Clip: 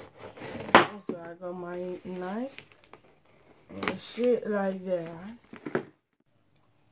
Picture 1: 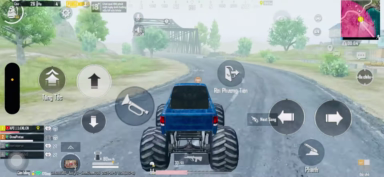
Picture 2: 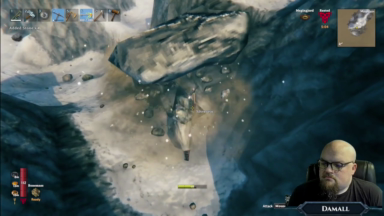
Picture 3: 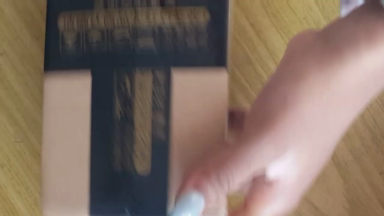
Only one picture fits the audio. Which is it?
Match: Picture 3